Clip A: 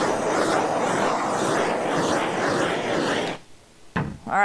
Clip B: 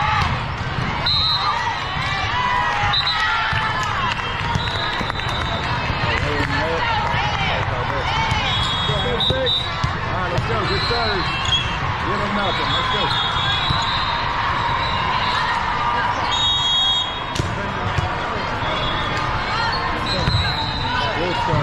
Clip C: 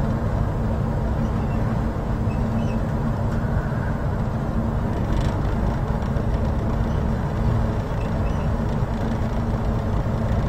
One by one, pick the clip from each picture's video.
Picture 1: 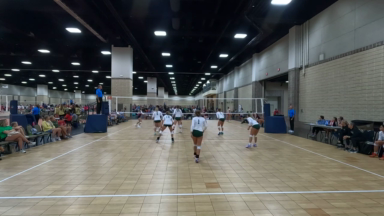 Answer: B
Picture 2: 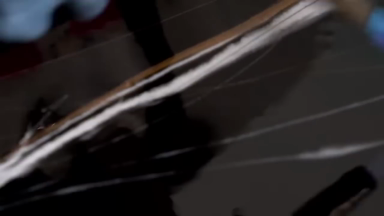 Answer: A